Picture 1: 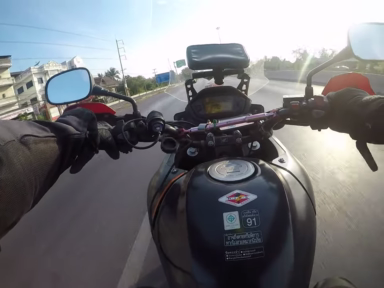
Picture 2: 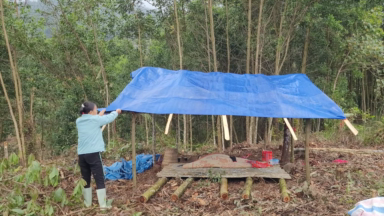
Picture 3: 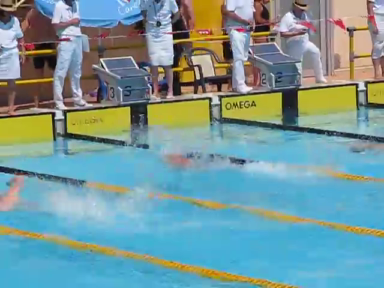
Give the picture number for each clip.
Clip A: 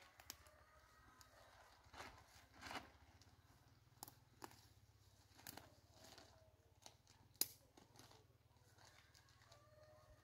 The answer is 2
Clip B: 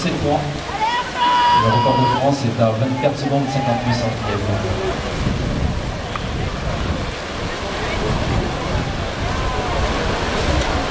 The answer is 3